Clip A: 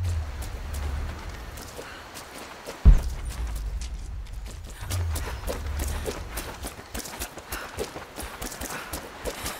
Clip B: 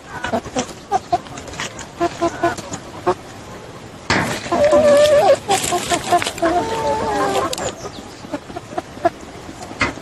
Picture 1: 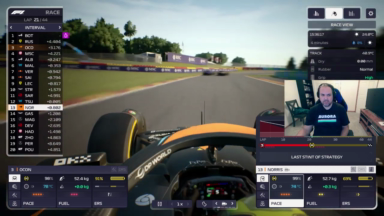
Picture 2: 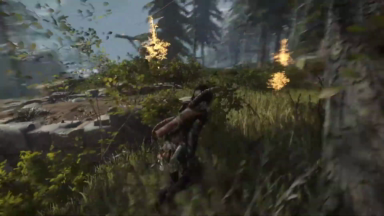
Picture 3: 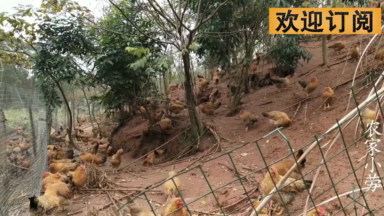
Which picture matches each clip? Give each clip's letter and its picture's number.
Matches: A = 2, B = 3